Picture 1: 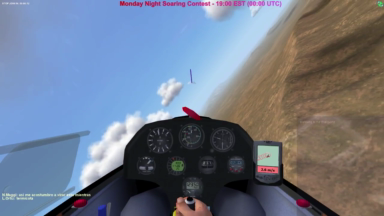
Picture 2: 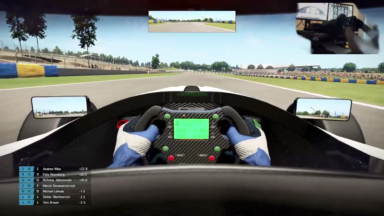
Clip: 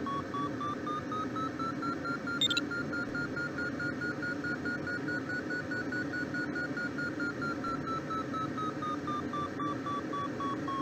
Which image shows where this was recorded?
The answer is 1